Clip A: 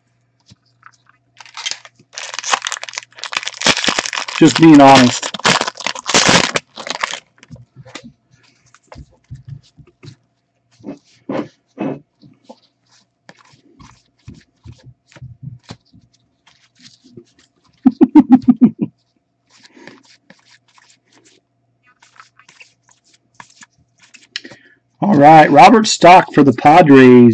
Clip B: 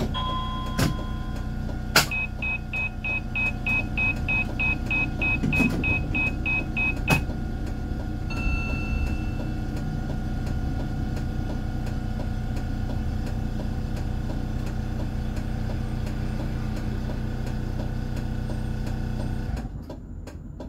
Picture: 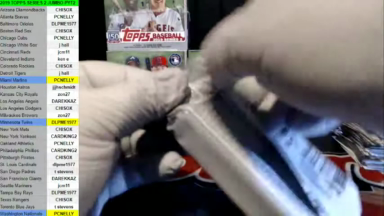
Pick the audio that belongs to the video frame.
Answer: A